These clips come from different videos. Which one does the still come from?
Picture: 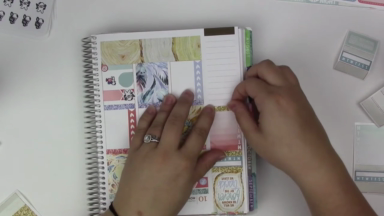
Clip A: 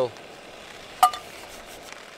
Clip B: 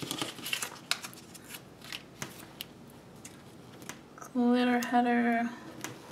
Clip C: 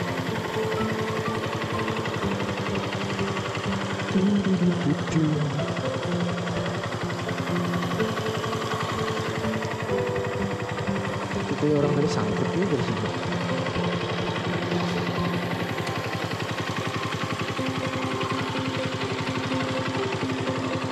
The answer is B